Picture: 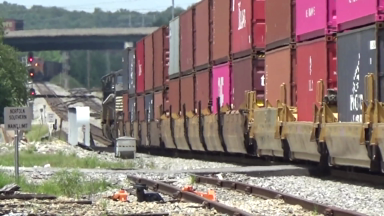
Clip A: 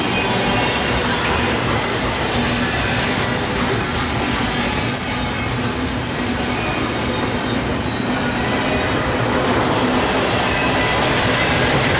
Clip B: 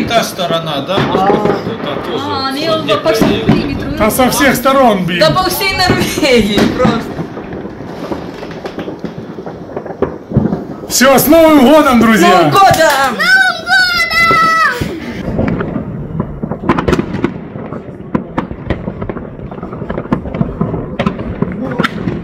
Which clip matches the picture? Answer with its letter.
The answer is A